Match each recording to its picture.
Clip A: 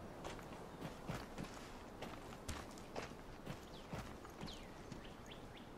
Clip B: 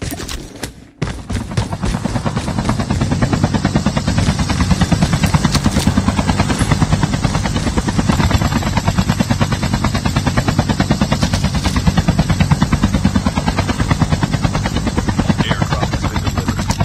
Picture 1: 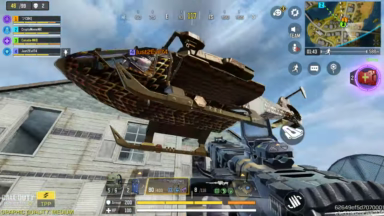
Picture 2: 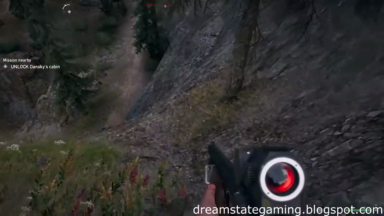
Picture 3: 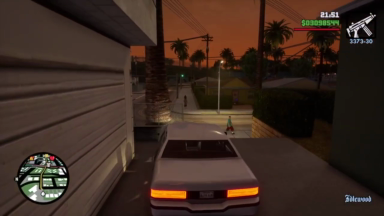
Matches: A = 2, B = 1